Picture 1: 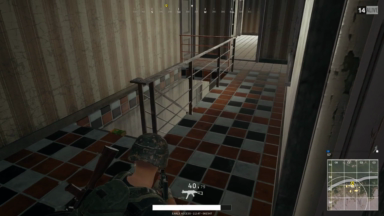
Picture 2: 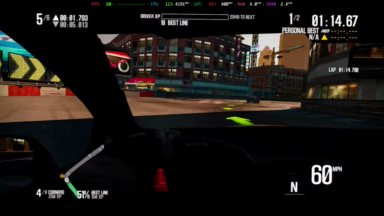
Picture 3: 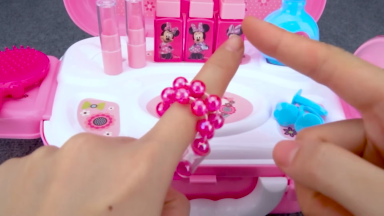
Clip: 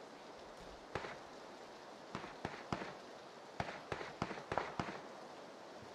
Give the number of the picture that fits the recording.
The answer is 1